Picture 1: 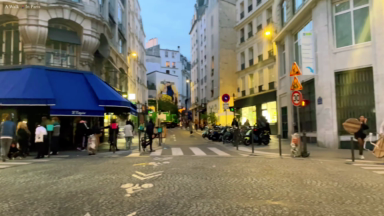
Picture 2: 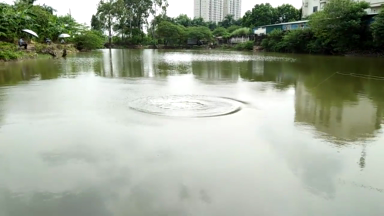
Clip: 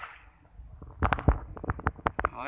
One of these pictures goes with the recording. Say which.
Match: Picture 2